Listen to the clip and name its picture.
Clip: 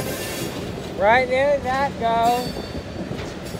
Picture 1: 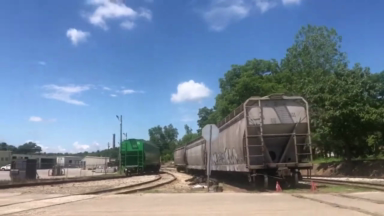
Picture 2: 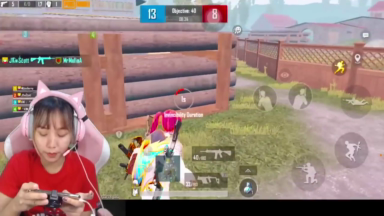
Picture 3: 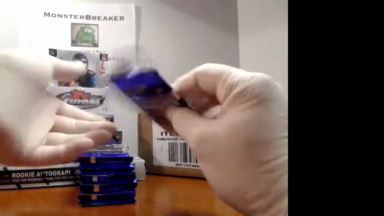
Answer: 1